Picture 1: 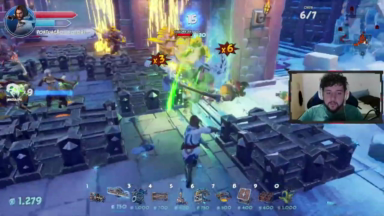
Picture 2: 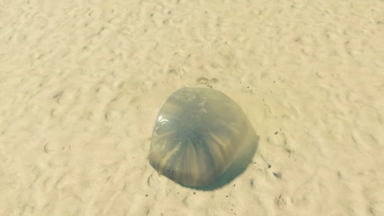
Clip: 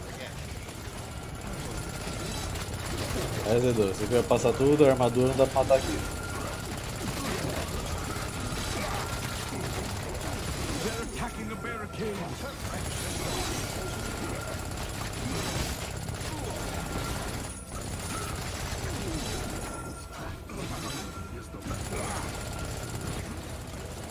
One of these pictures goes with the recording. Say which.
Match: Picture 1